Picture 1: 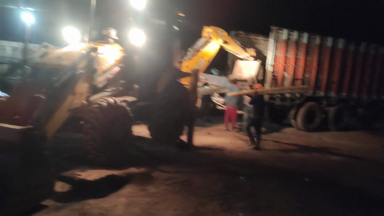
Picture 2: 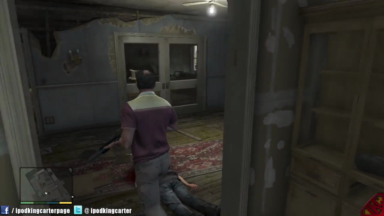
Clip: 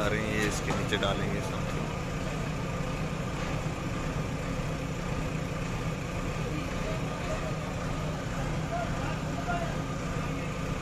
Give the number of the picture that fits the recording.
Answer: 1